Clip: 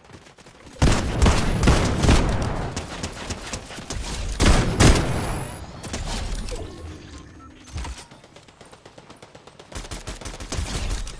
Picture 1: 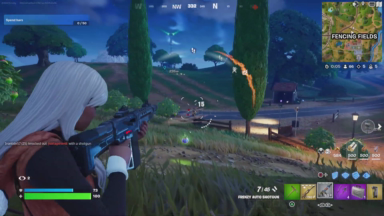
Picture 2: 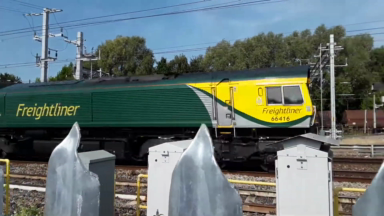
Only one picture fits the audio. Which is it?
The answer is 1